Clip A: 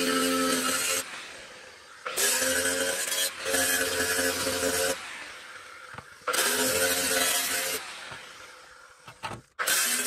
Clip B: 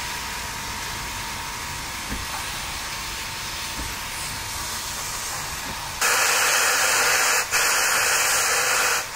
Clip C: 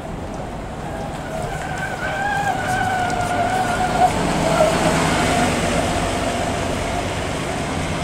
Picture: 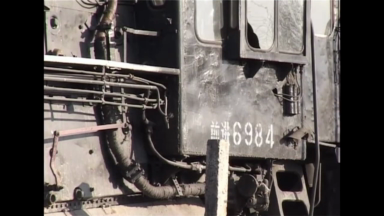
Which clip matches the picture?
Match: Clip B